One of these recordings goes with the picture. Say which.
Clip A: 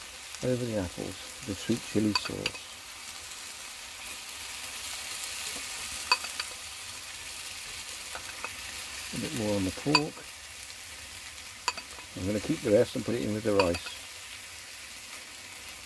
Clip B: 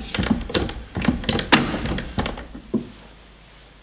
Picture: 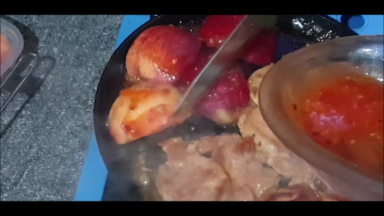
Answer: A